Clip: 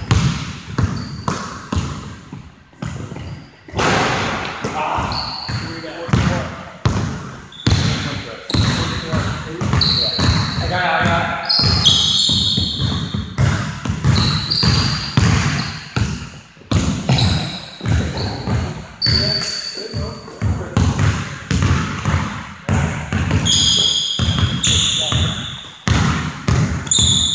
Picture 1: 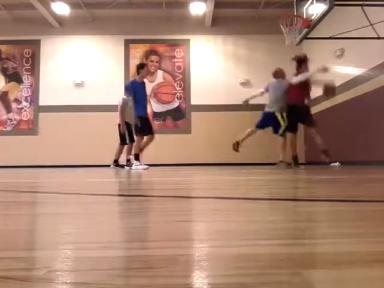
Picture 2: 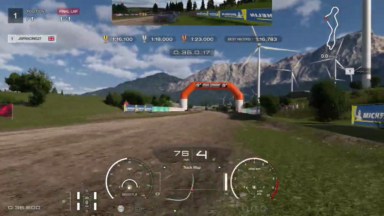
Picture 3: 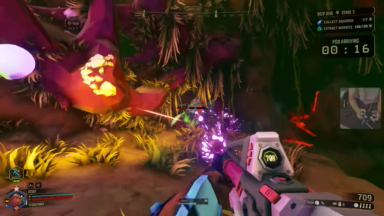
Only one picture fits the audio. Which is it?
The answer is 1